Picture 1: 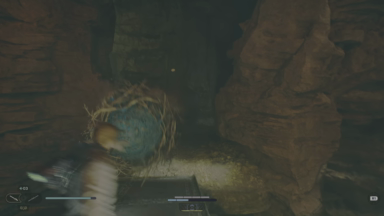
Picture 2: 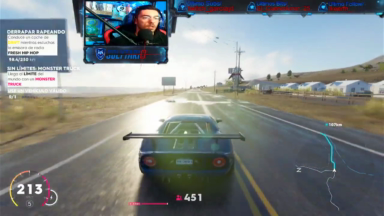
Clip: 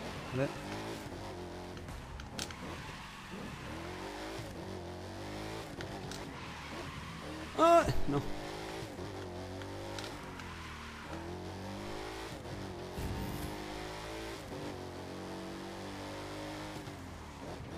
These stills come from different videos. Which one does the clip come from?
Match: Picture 2